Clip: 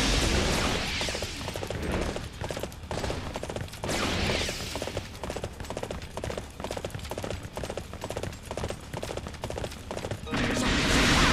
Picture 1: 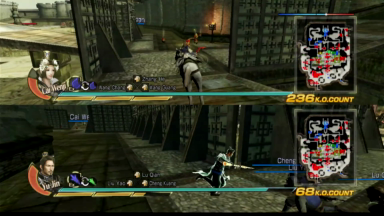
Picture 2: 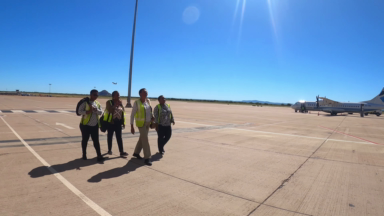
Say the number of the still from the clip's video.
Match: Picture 1